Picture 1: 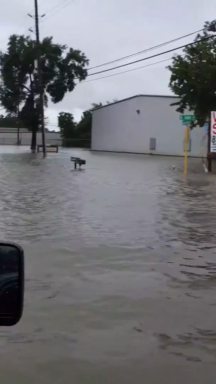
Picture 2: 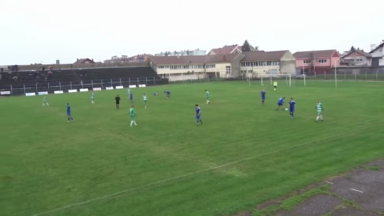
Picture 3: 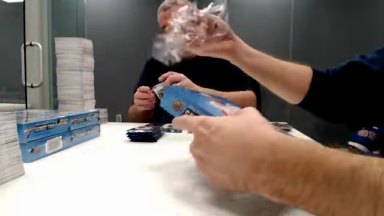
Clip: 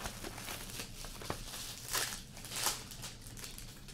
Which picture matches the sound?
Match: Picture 3